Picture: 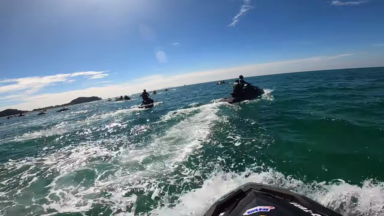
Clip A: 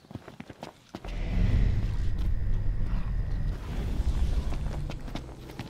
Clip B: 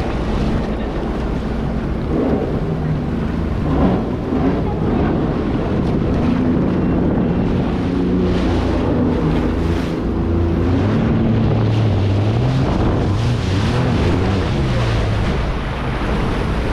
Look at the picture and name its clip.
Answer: B